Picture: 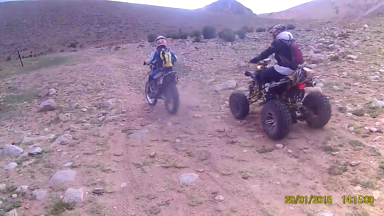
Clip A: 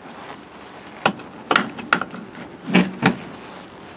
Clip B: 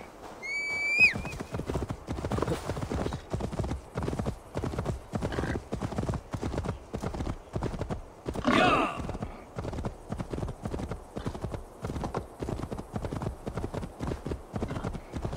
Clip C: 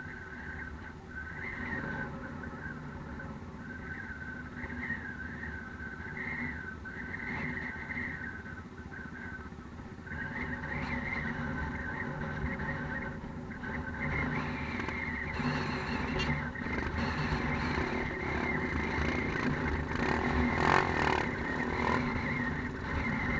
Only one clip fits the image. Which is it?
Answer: C